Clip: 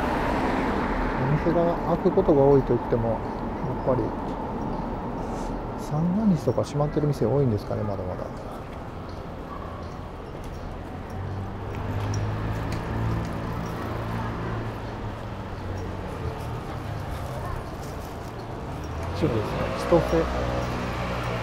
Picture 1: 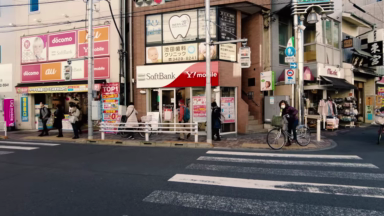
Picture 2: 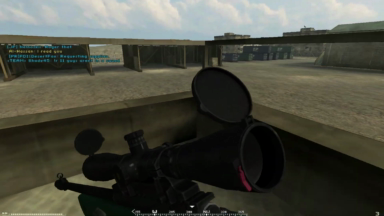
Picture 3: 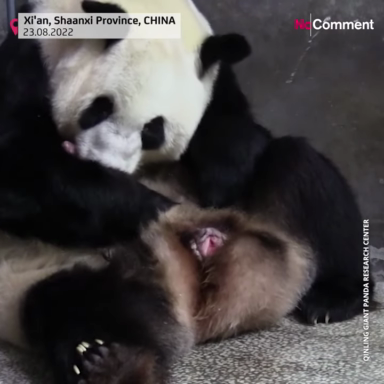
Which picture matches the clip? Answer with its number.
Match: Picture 1